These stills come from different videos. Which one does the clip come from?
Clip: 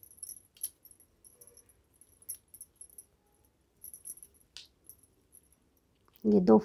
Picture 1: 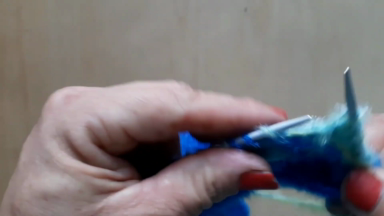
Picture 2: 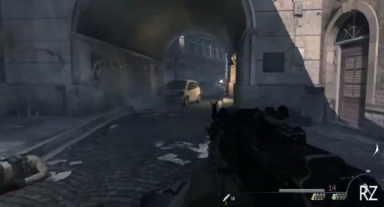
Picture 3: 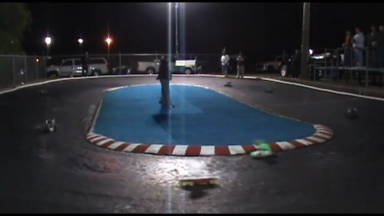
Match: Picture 1